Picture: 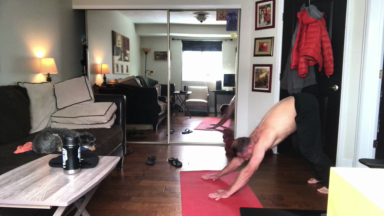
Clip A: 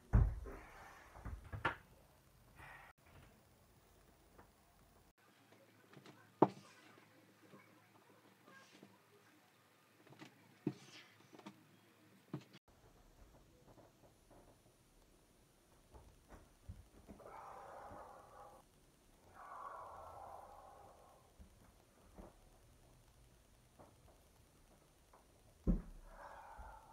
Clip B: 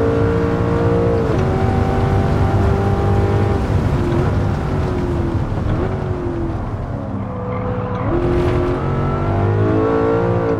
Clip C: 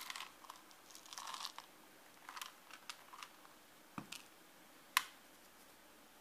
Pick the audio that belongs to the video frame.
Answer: A